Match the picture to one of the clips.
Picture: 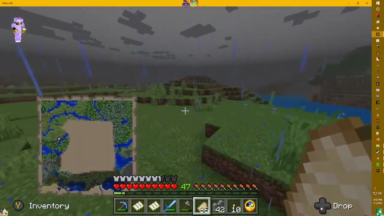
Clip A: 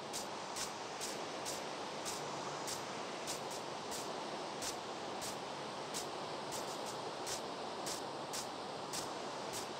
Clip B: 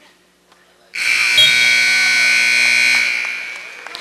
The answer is A